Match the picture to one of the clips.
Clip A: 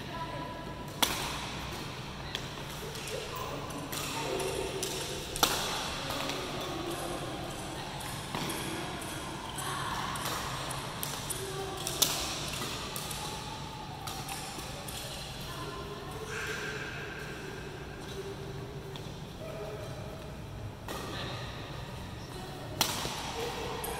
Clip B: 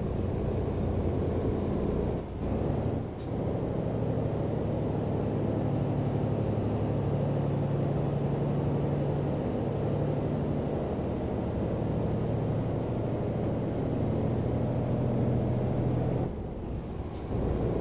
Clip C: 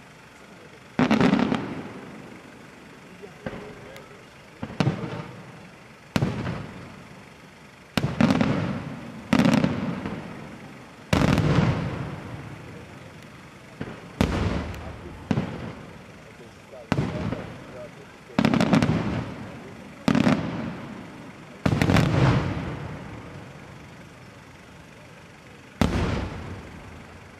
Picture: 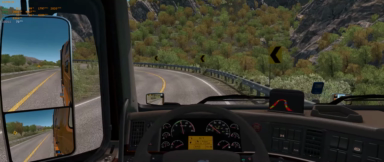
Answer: B